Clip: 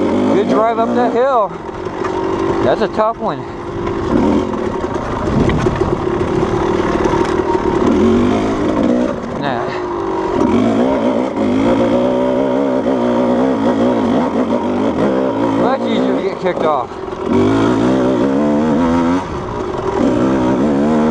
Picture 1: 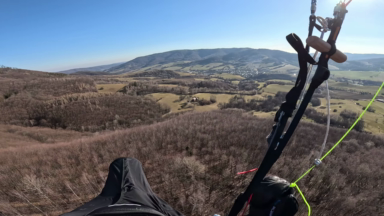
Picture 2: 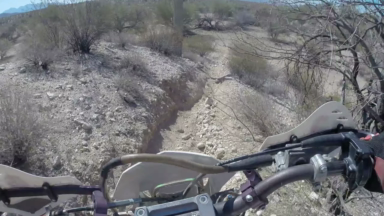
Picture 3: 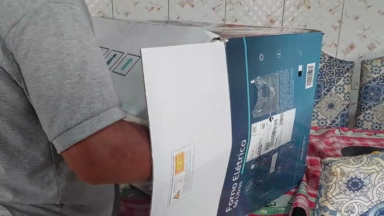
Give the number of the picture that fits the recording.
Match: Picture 2